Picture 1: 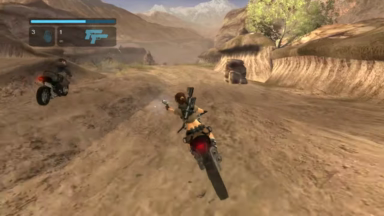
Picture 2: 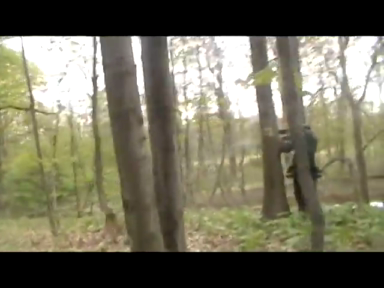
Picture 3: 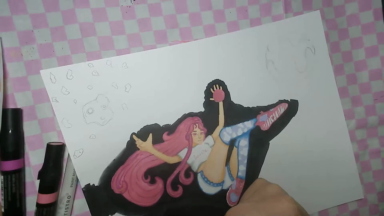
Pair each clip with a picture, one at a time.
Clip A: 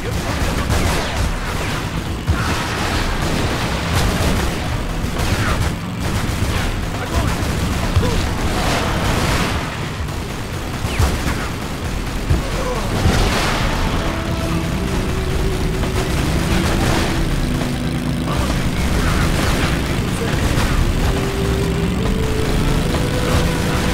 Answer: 1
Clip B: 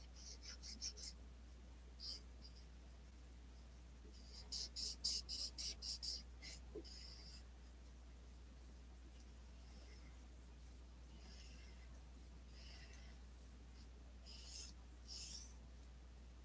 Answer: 3